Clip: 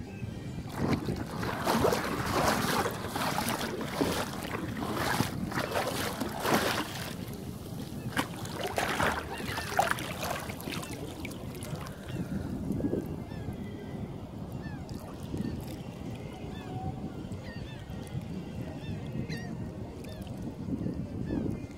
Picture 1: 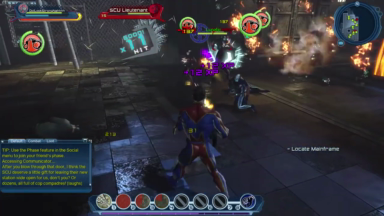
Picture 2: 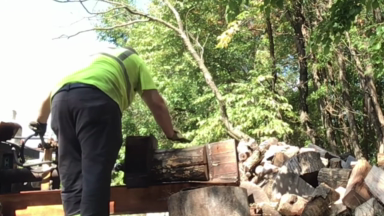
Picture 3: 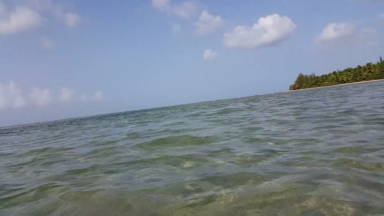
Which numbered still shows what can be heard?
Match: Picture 3